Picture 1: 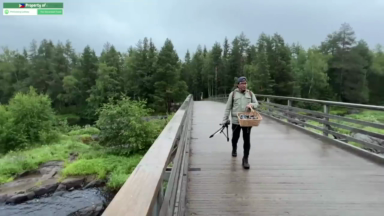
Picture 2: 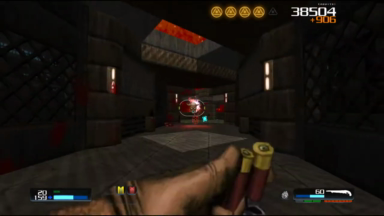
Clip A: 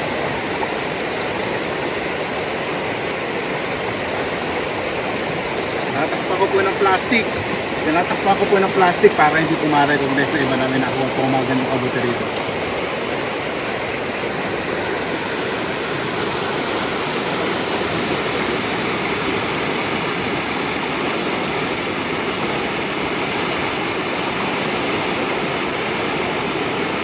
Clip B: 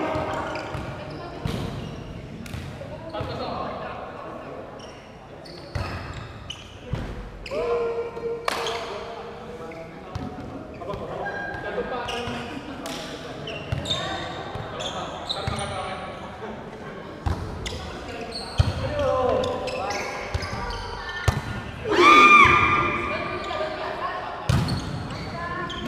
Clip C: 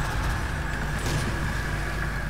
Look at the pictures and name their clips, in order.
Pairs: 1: A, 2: C